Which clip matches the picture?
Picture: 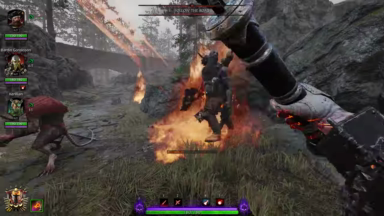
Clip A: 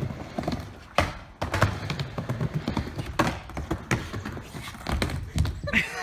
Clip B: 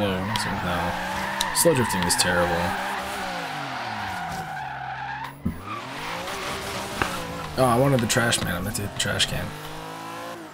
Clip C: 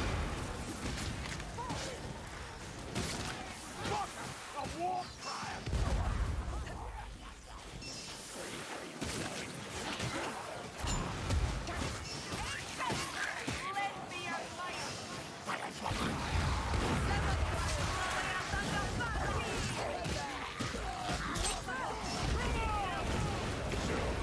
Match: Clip C